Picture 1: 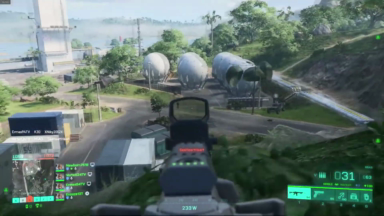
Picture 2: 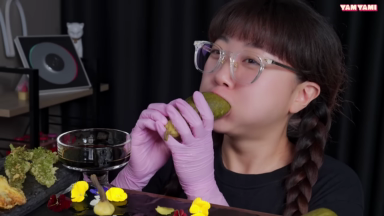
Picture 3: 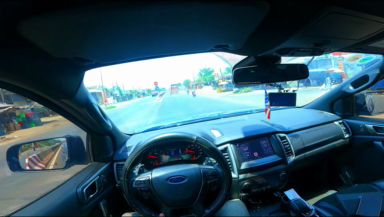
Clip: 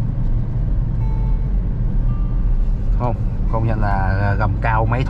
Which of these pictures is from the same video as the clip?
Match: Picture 3